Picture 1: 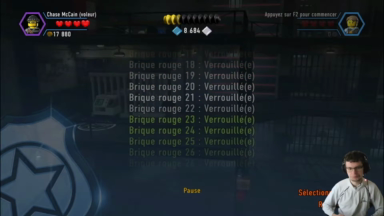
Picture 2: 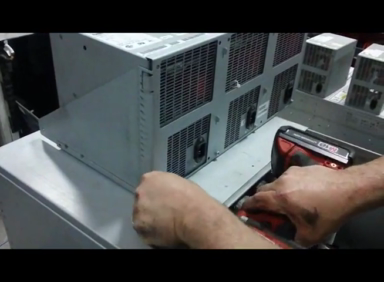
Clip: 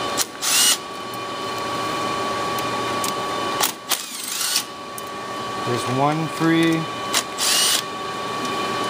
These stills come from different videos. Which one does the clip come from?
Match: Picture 2